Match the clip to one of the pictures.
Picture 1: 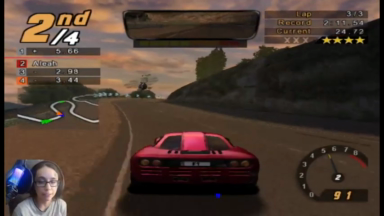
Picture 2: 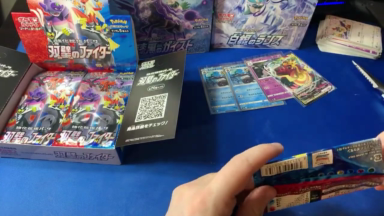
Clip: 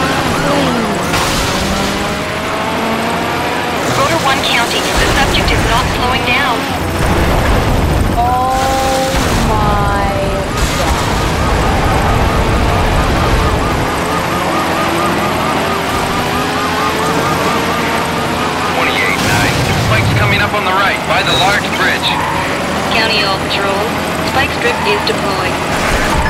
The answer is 1